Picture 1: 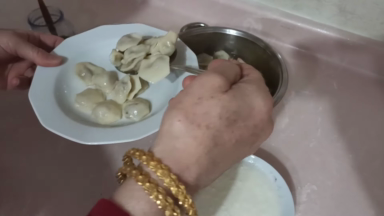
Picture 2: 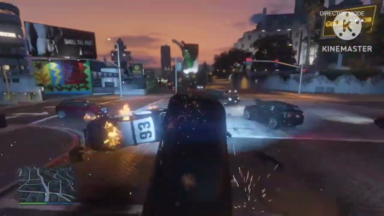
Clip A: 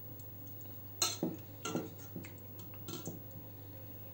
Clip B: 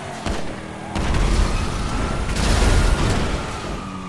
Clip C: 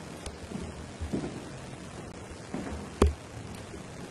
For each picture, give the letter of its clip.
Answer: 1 A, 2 B